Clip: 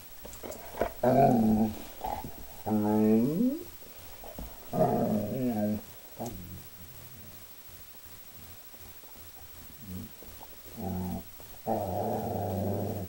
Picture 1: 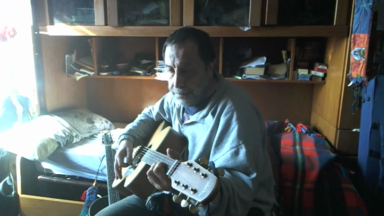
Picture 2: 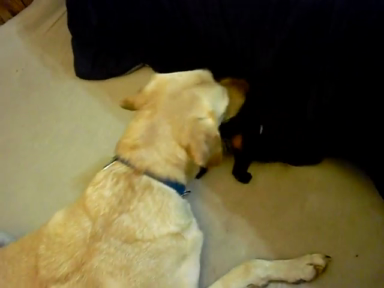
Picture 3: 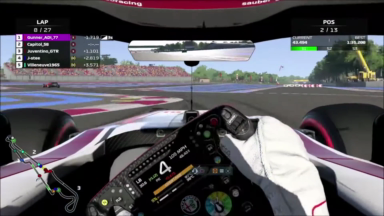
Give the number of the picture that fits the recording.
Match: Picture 2